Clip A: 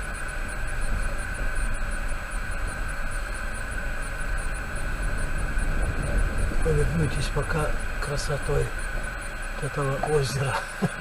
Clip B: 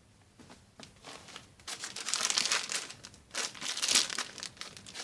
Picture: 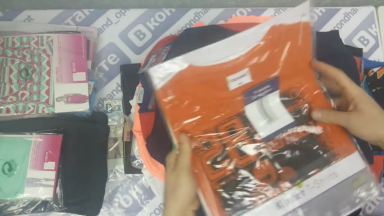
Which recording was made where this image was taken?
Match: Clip B